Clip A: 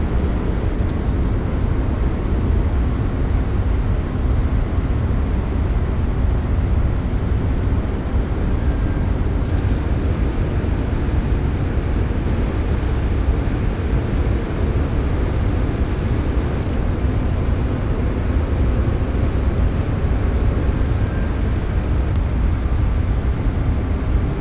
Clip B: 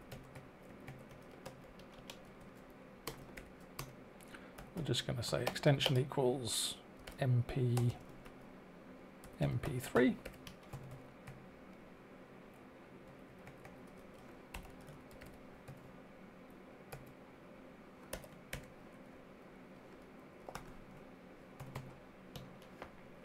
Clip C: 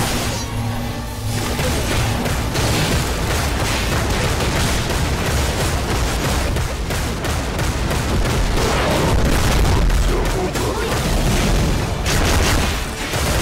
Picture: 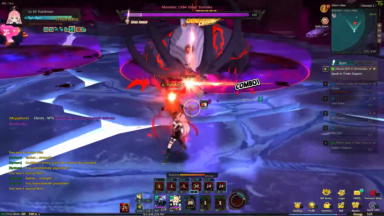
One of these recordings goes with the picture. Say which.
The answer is C